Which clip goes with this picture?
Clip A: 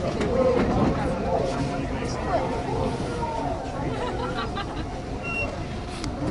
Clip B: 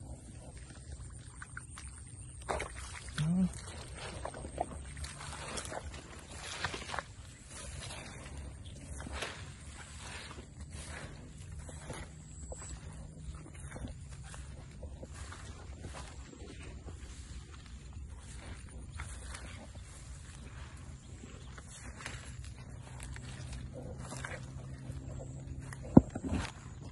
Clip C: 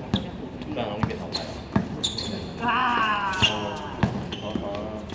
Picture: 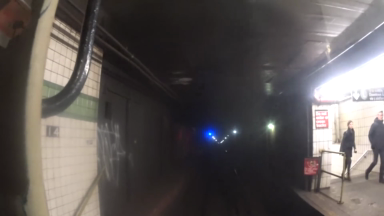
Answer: A